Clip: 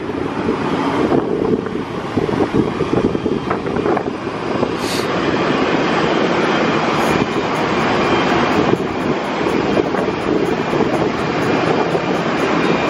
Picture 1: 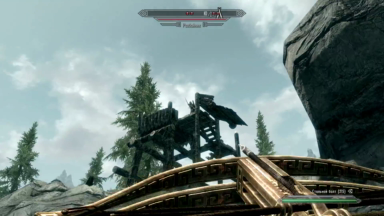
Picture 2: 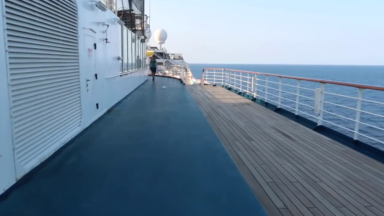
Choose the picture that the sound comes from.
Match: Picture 2